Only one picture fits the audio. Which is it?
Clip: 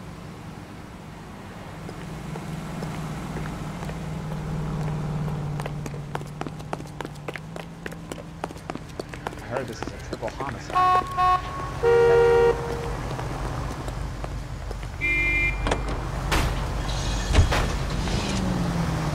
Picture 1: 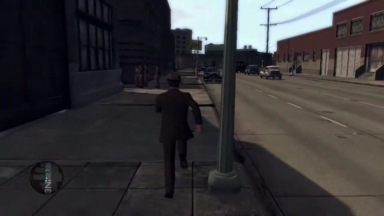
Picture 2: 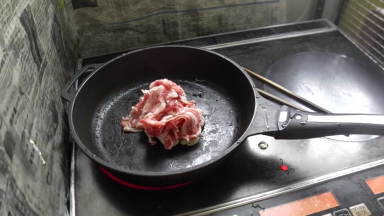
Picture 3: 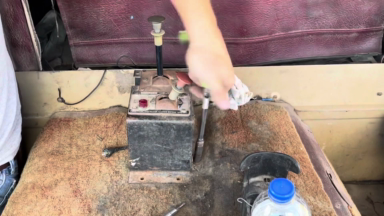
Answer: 1